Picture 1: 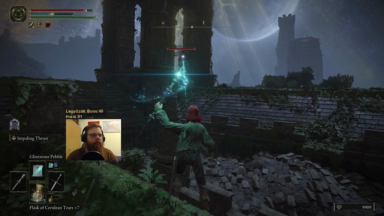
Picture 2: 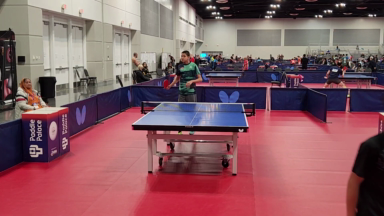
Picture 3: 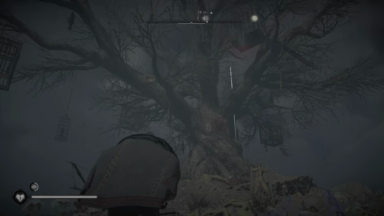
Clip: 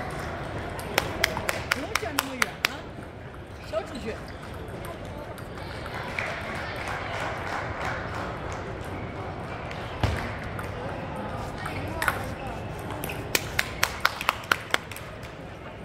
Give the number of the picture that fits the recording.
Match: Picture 2